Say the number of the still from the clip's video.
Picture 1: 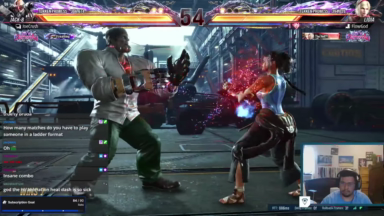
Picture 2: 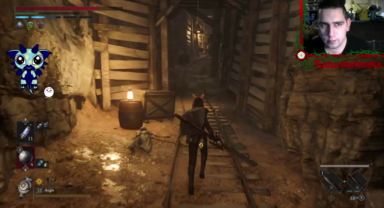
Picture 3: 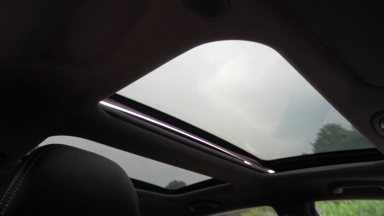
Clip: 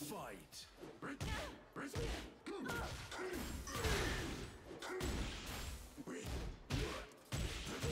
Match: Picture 1